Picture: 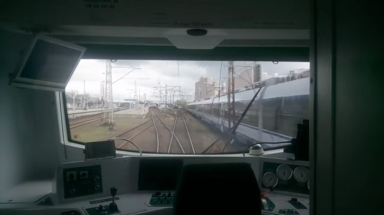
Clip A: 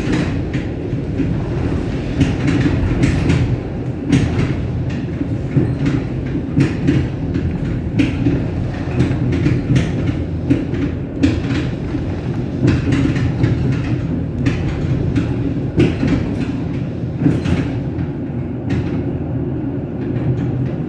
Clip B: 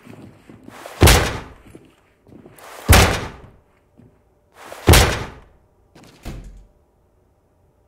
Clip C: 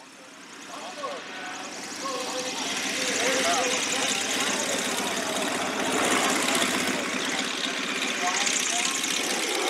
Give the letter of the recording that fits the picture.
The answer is A